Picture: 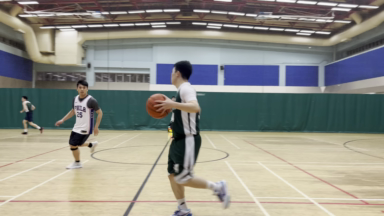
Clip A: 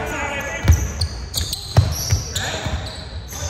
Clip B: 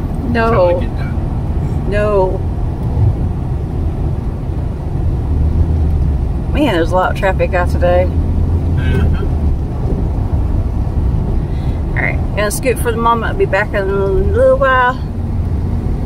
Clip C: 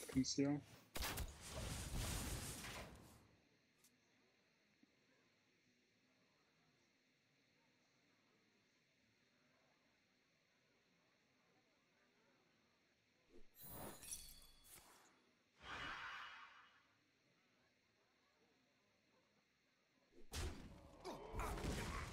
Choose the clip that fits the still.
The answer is A